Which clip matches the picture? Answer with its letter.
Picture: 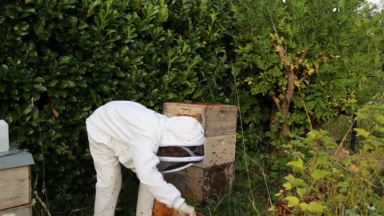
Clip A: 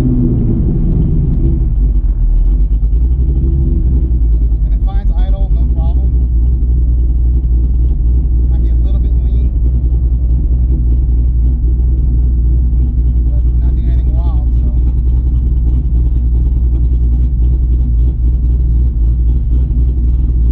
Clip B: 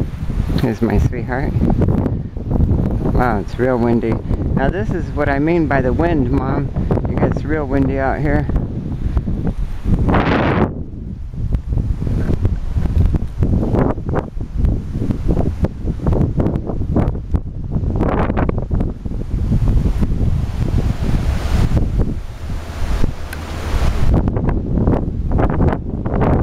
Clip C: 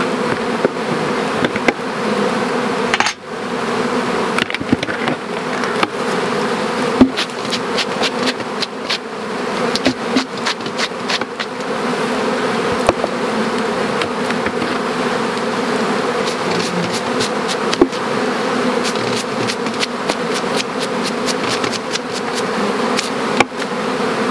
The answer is C